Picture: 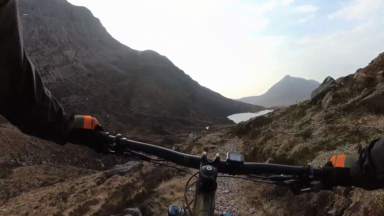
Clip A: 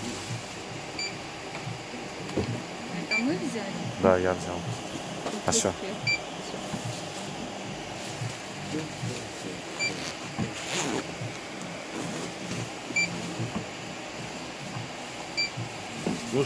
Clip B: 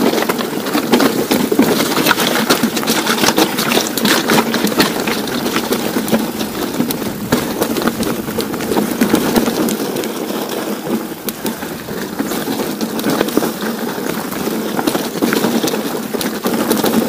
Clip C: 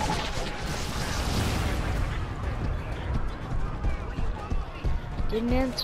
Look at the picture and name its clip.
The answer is B